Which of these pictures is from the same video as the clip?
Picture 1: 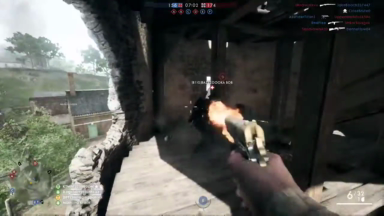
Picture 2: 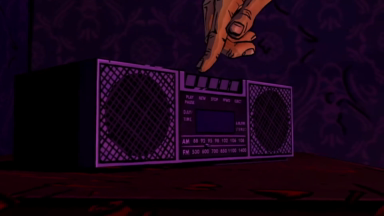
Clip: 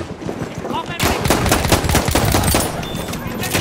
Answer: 1